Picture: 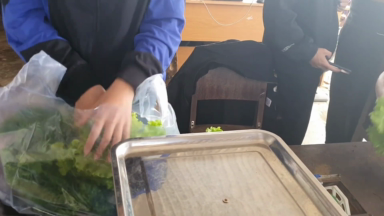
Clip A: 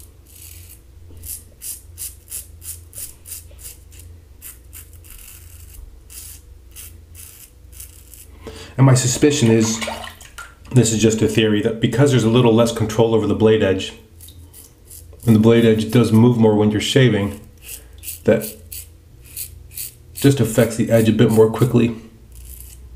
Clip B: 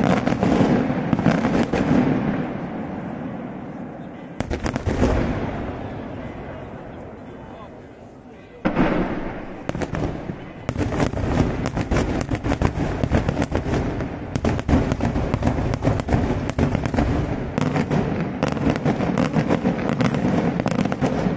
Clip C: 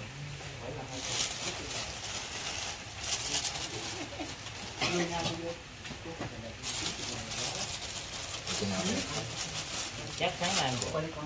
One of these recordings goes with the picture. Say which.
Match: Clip C